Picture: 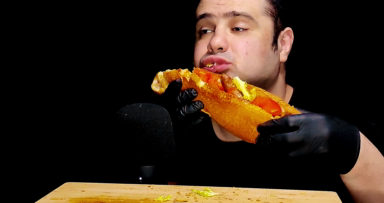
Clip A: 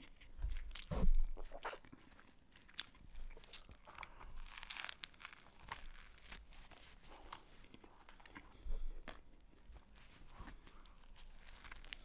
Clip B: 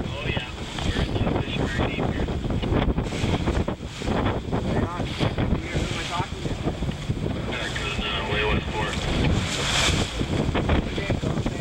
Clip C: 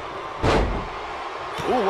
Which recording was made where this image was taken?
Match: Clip A